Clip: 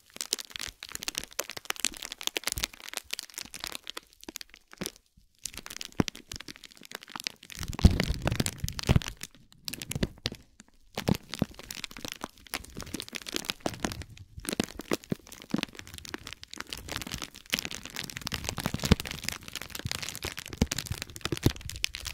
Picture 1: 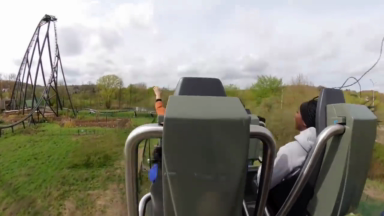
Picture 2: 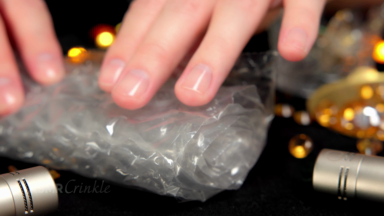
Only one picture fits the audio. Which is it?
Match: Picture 2